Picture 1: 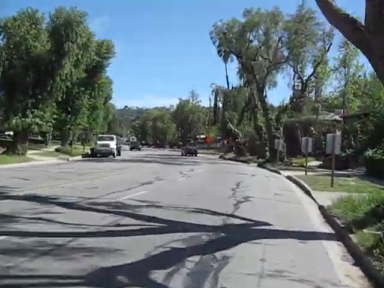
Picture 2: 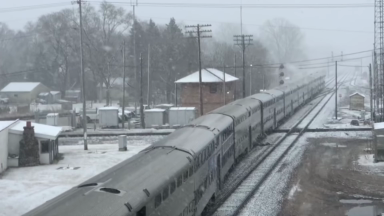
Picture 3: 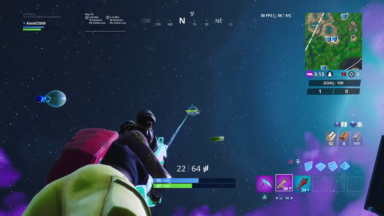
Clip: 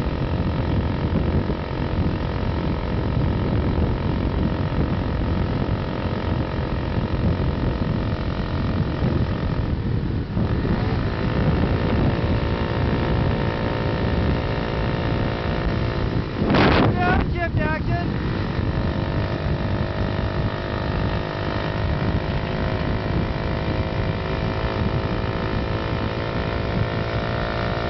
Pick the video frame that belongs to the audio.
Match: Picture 1